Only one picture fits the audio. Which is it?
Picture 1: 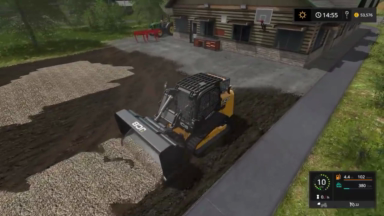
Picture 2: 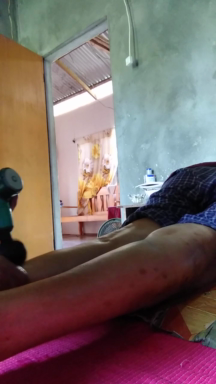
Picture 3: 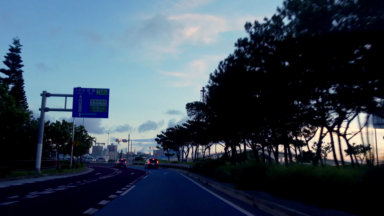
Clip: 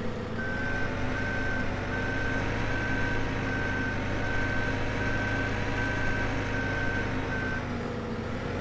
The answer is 1